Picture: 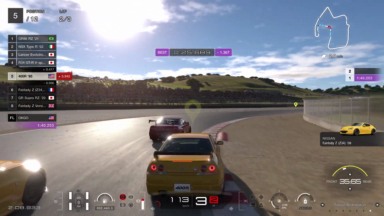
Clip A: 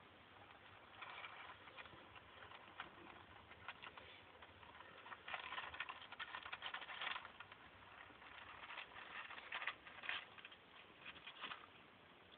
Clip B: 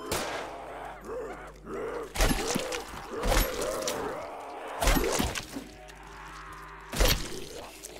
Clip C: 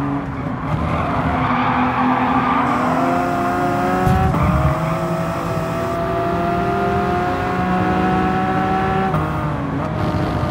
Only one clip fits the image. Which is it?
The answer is C